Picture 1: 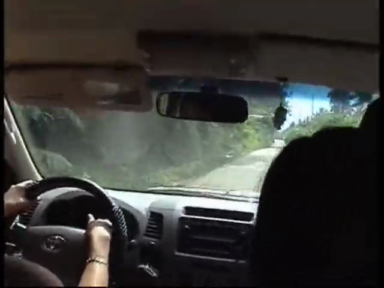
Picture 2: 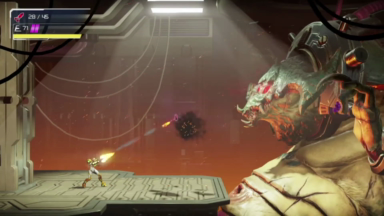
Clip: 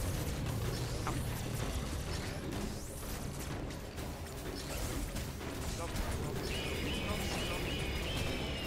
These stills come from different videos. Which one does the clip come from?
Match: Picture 2